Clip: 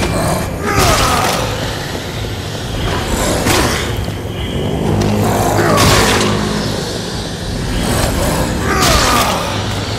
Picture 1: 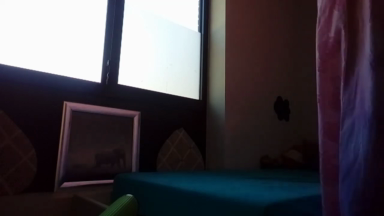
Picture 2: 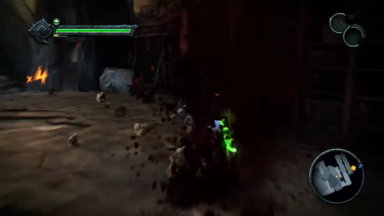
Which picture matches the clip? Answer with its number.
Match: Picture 2